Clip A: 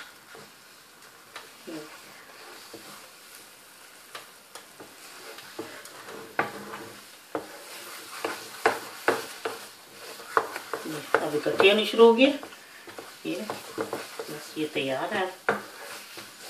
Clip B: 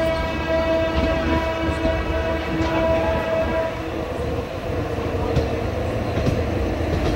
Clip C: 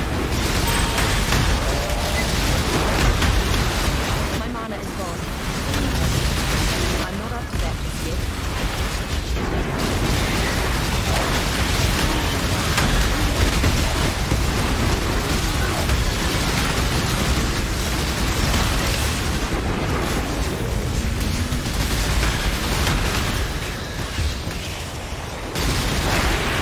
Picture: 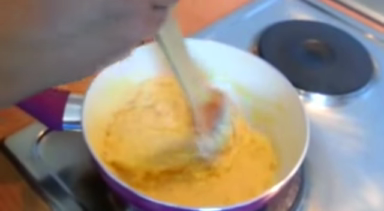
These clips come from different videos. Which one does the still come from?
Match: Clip A